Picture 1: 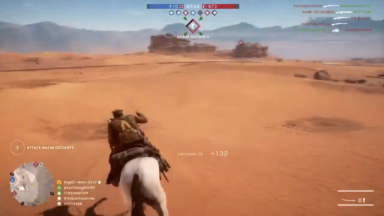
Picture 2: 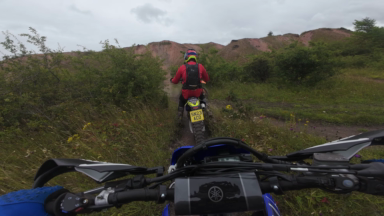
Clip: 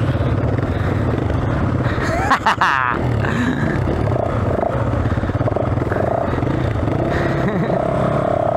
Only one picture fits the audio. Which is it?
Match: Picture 2